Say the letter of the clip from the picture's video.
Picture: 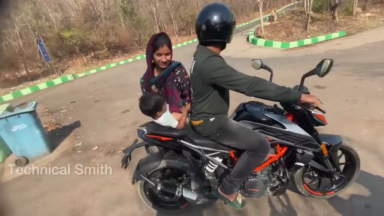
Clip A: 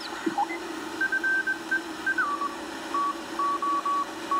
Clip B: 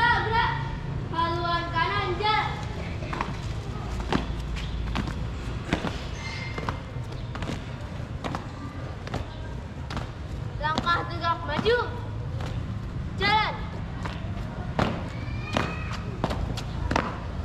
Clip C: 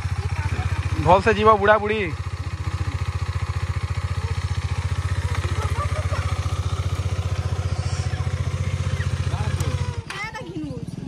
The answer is C